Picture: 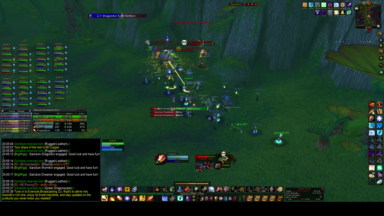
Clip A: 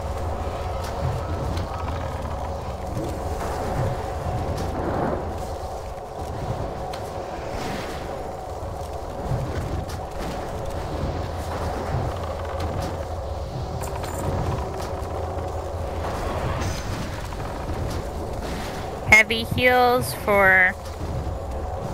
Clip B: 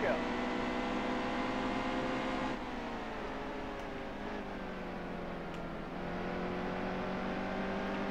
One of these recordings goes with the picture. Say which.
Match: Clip A